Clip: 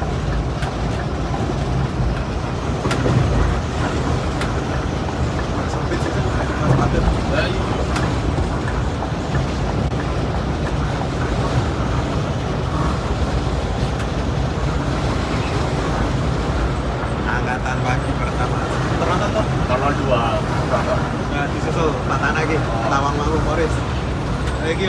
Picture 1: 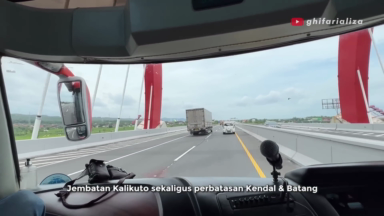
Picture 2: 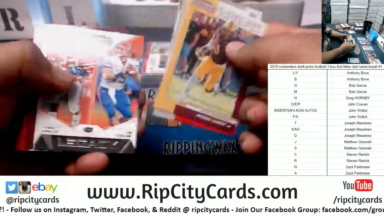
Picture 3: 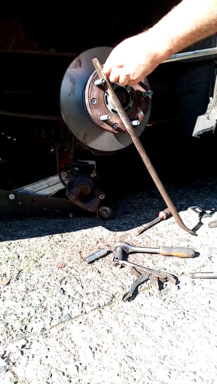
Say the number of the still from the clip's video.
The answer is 1